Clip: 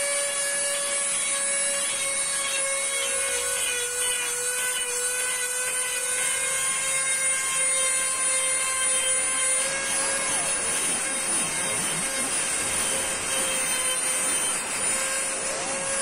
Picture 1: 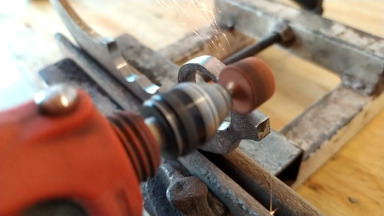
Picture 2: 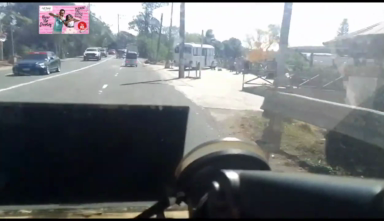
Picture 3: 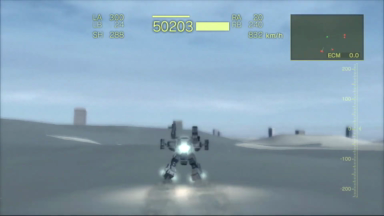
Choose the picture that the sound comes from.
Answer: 1